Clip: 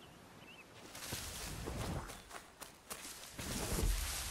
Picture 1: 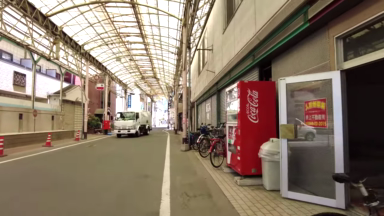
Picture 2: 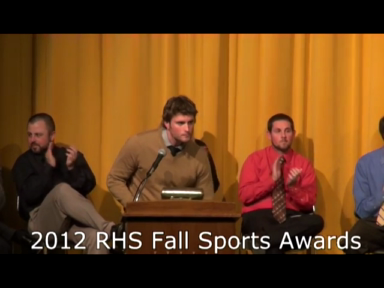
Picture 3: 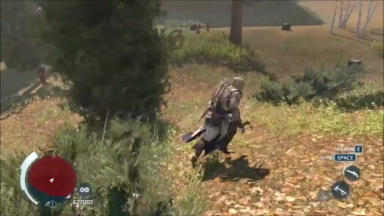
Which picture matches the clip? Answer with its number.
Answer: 3